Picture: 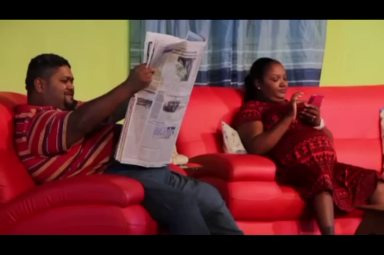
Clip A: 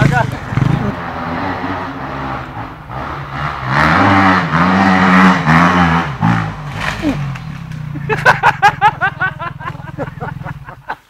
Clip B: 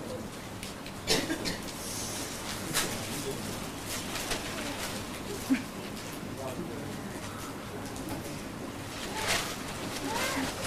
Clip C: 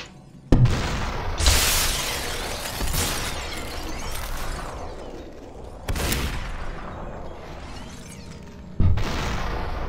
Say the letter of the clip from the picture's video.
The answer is B